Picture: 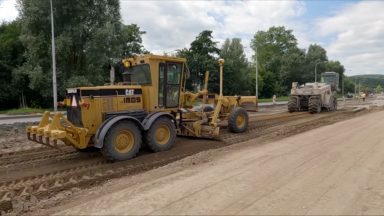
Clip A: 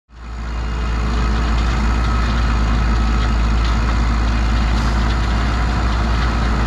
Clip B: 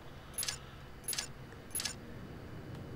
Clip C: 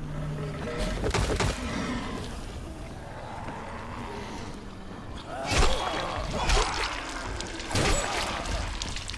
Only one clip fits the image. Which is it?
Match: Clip A